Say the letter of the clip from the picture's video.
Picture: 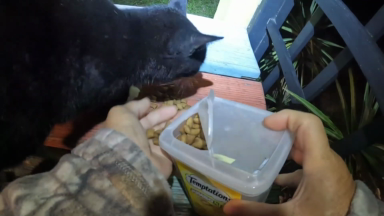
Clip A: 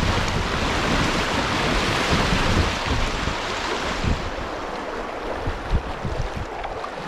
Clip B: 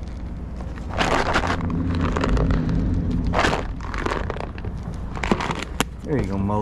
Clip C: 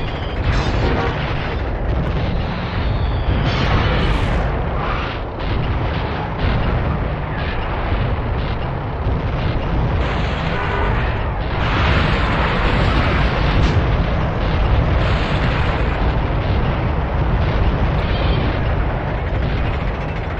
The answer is B